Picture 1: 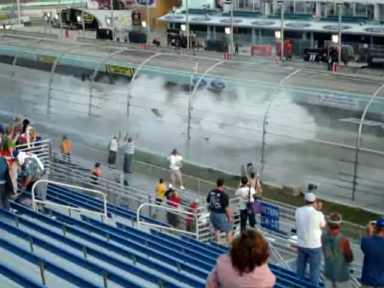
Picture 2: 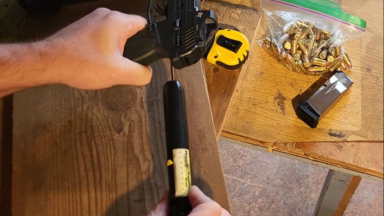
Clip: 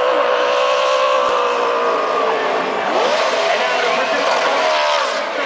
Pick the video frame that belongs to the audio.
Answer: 1